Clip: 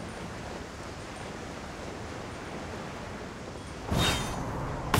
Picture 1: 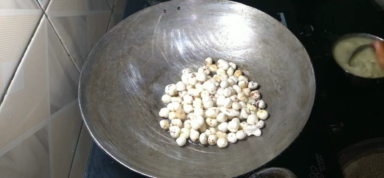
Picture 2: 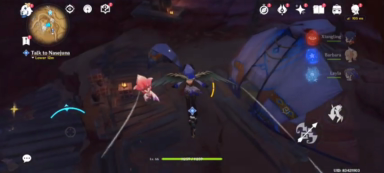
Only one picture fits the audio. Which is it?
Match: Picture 2